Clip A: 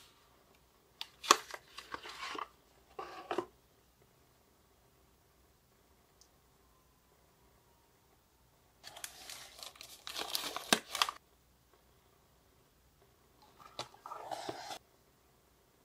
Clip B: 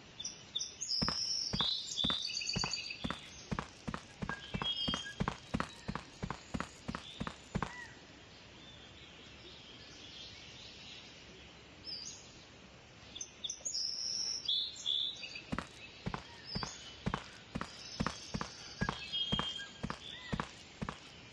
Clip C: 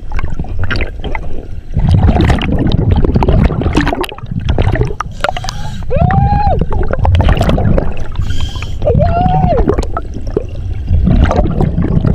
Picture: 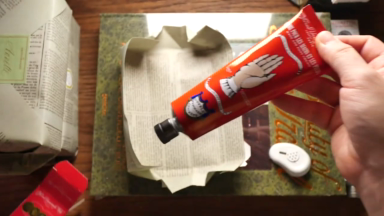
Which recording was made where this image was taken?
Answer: A